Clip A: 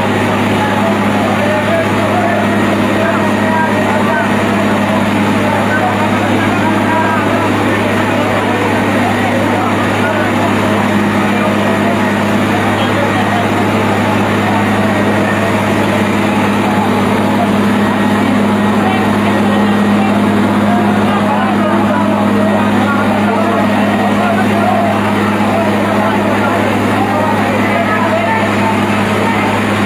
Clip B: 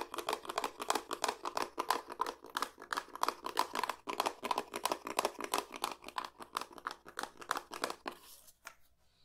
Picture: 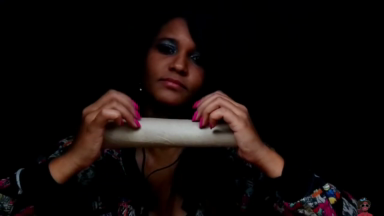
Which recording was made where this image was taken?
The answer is B